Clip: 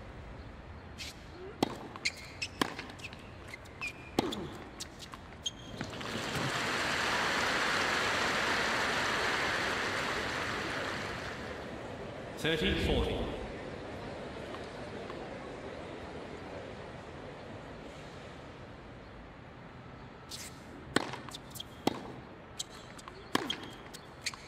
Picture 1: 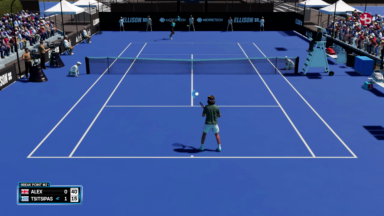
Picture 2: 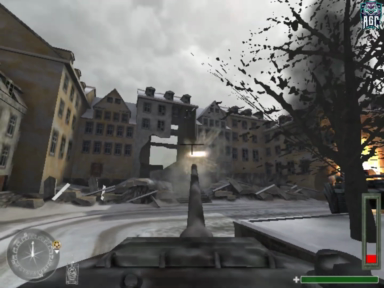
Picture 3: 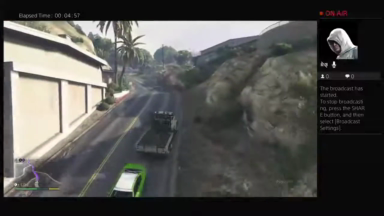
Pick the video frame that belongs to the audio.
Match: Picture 1